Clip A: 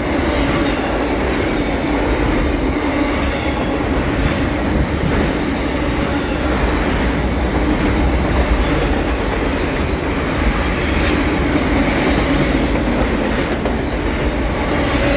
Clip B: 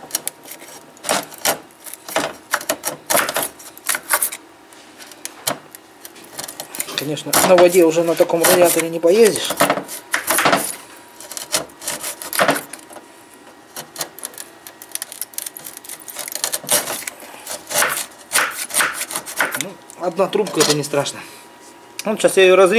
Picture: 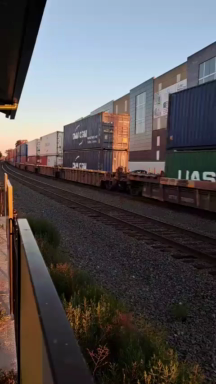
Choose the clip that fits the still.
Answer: A